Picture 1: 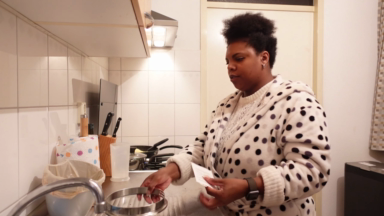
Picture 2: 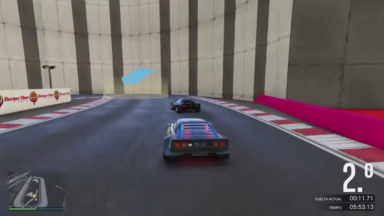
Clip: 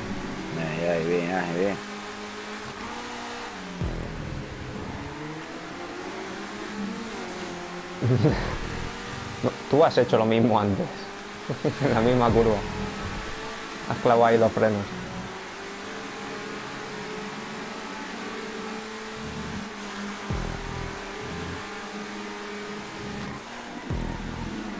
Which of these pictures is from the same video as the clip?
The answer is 2